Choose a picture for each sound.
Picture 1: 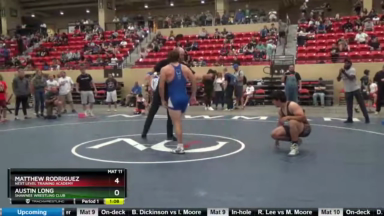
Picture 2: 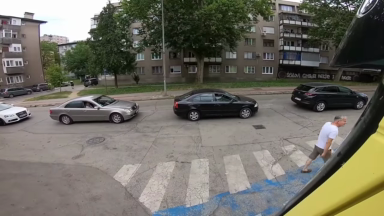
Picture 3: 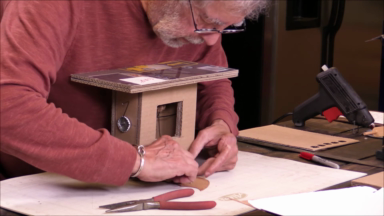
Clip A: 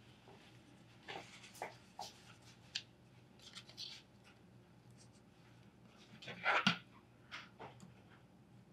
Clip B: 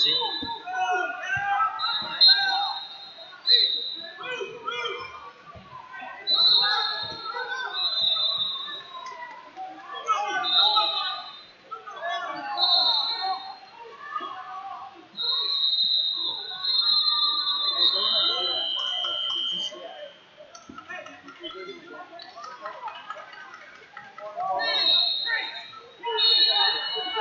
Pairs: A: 3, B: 1